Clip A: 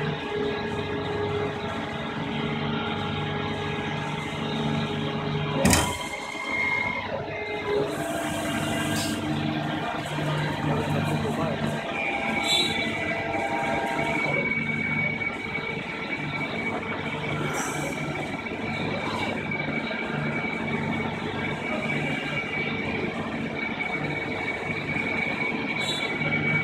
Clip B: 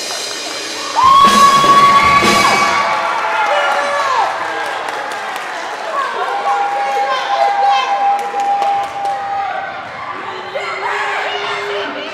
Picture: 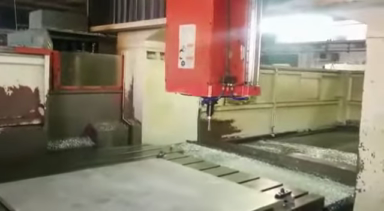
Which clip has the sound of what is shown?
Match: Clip A